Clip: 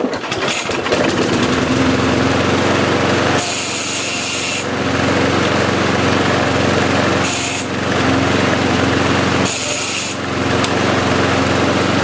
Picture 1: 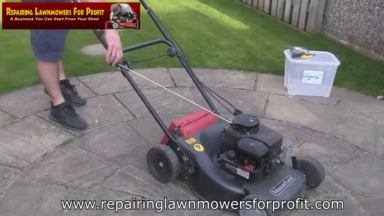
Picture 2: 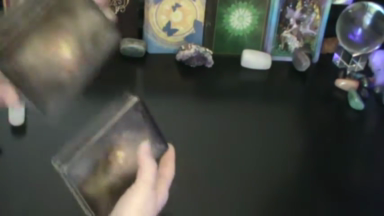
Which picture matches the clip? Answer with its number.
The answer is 1